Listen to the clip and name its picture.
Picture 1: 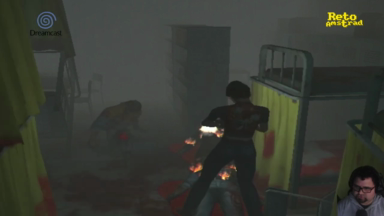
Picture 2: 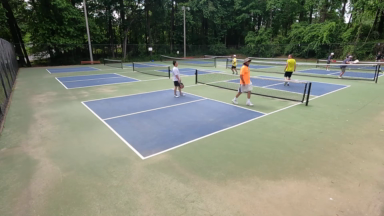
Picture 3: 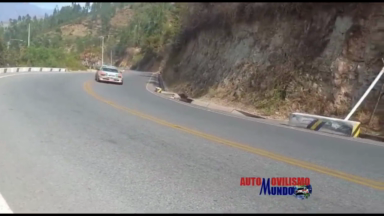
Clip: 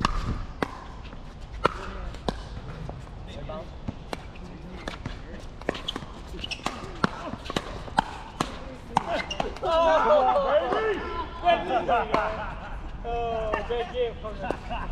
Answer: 2